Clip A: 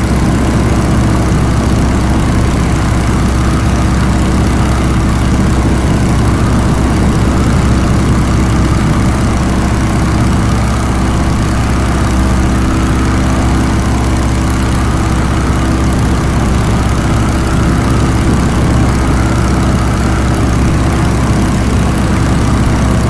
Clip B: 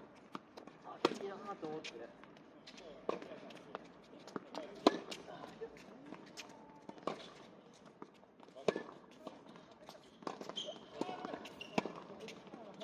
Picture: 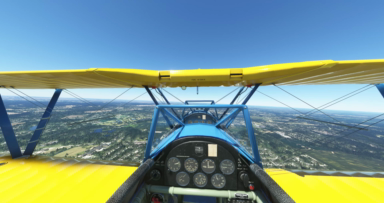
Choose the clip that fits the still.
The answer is A